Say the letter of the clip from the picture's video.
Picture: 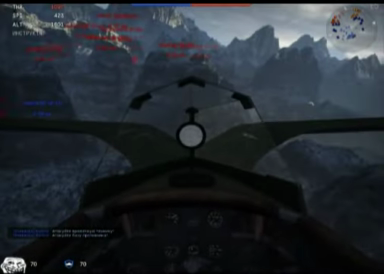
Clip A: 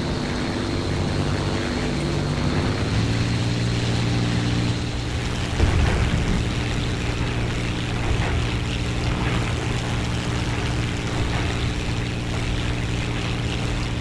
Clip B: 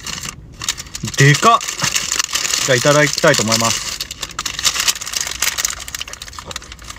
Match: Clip A